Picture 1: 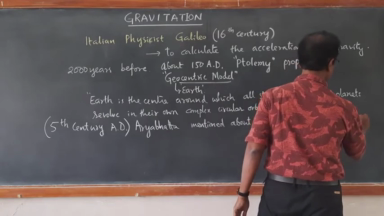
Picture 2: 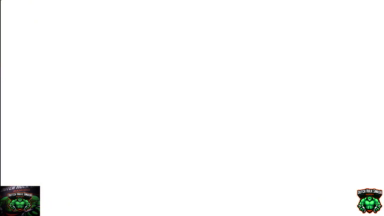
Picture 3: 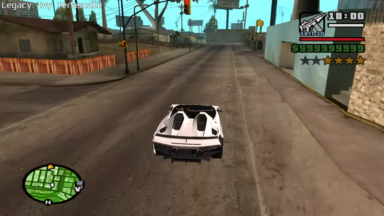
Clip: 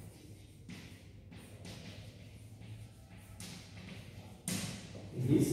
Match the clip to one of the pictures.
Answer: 1